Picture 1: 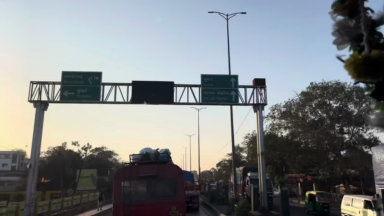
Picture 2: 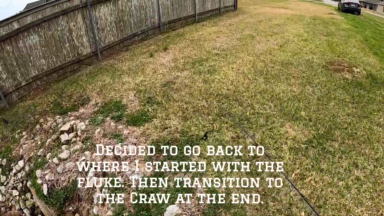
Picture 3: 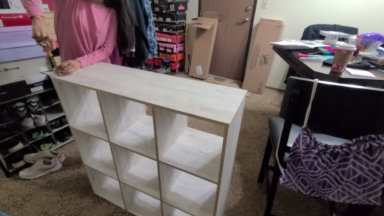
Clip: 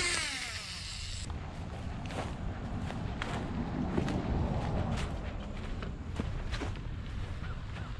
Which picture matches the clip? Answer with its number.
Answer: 2